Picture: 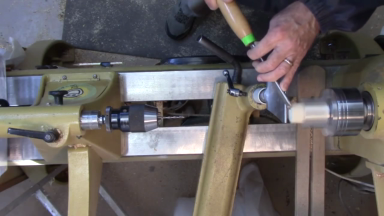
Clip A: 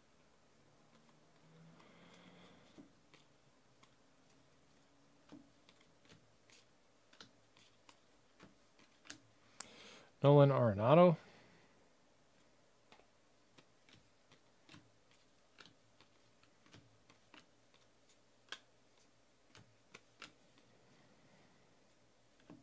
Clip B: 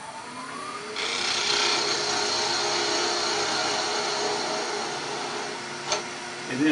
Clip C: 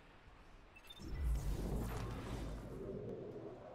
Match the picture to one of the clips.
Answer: B